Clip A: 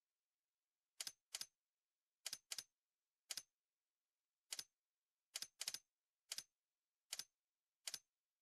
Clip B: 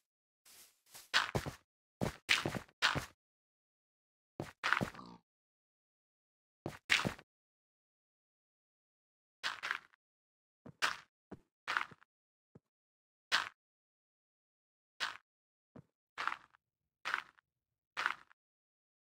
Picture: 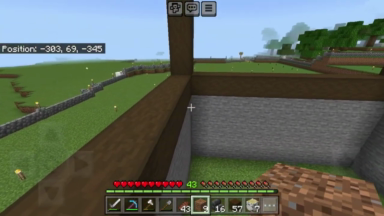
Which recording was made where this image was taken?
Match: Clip B